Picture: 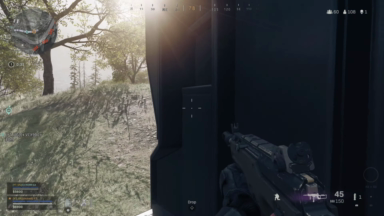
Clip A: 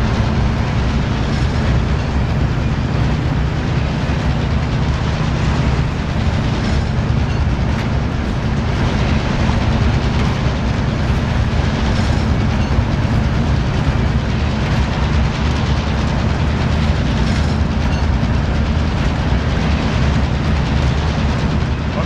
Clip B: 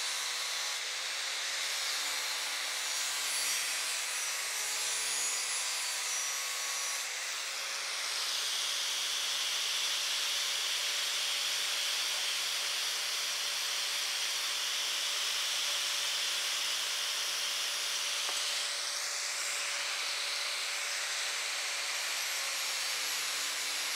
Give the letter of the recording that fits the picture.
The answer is A